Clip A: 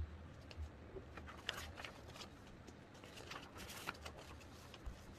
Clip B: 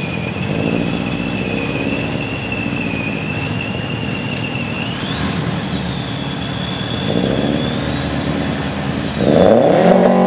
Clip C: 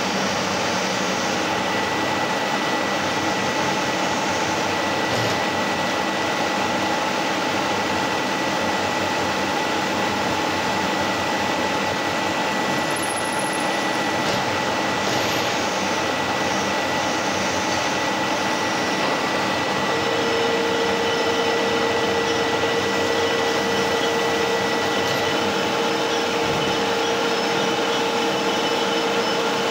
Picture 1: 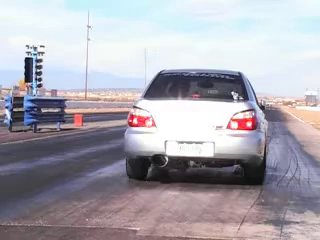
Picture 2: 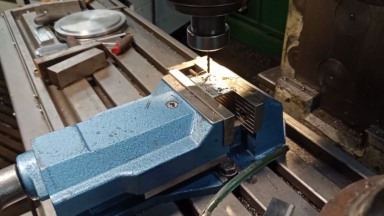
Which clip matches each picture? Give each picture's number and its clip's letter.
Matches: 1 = B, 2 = C